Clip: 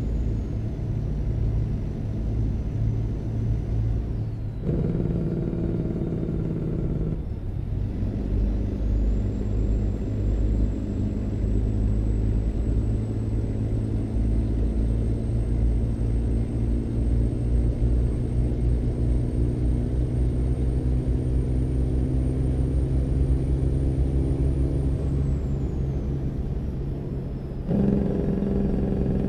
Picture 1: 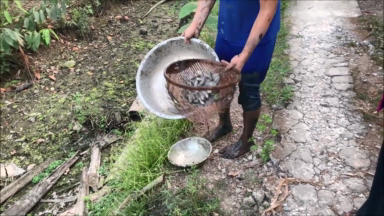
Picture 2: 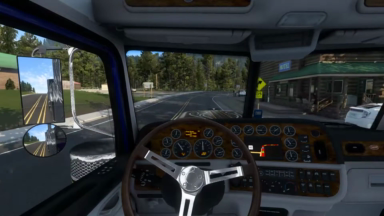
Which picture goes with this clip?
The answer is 2